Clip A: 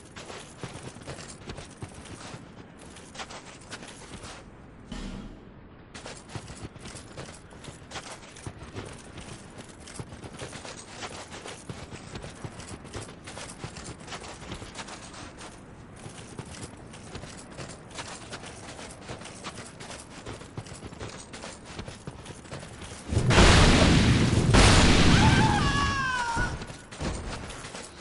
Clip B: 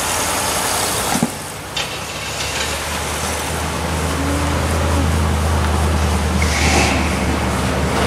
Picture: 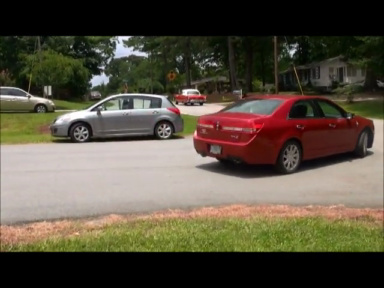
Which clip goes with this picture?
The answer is B